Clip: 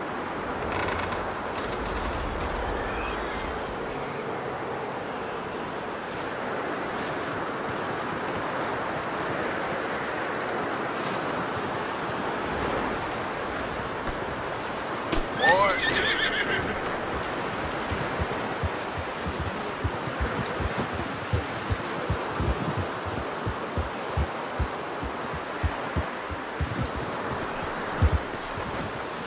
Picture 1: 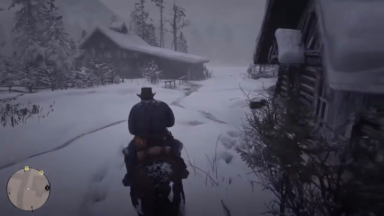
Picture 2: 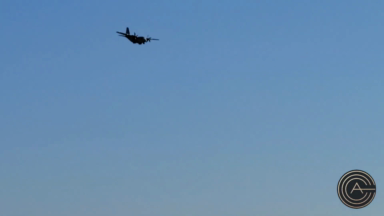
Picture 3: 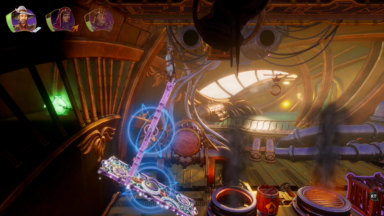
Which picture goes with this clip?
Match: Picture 1